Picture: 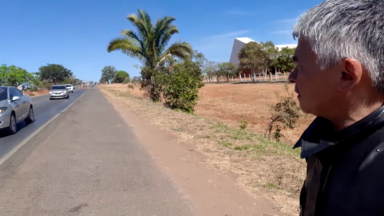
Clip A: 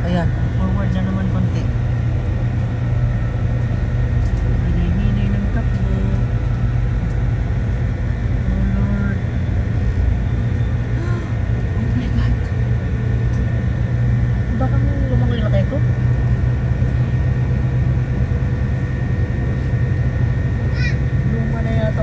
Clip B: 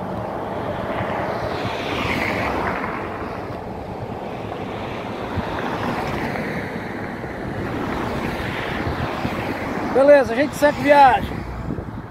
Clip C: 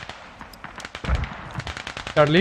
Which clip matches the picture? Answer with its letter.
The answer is B